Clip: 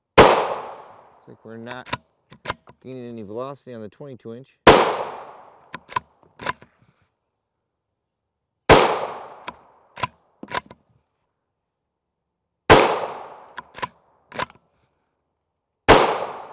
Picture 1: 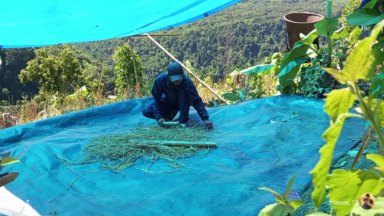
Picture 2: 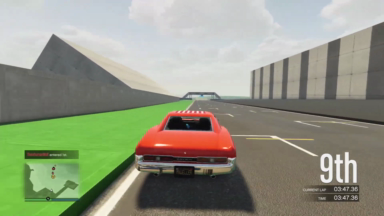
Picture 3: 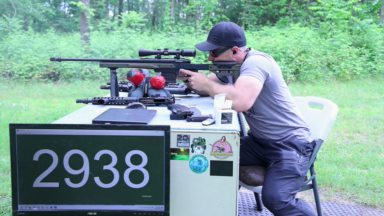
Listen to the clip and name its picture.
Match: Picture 3